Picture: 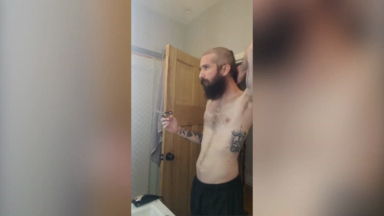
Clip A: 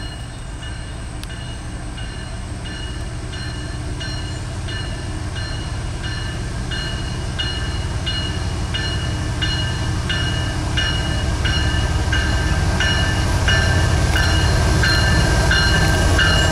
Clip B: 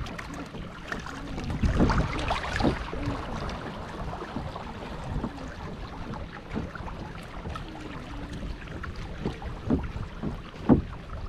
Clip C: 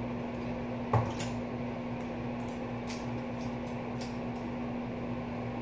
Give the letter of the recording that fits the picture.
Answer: C